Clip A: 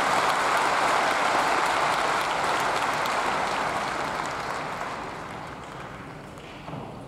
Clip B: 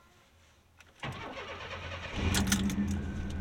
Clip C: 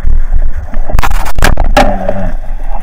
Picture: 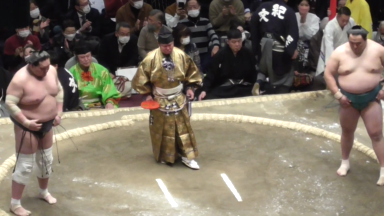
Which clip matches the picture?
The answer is A